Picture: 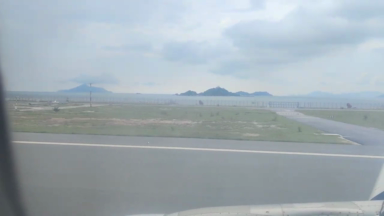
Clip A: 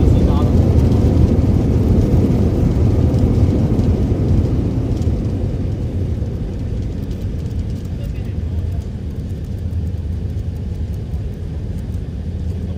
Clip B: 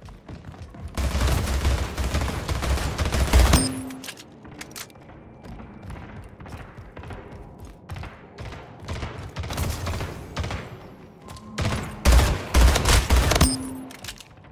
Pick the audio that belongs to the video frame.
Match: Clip A